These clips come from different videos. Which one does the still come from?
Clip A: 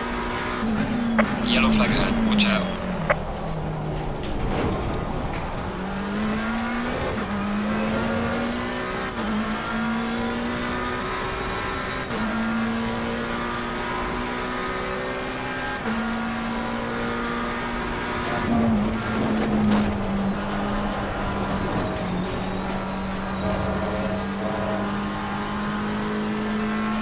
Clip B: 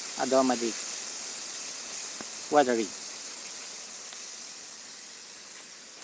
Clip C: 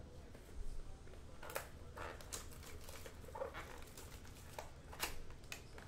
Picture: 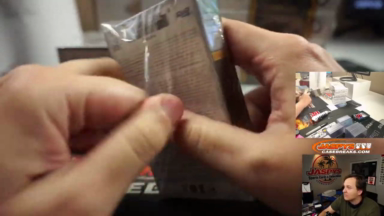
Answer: C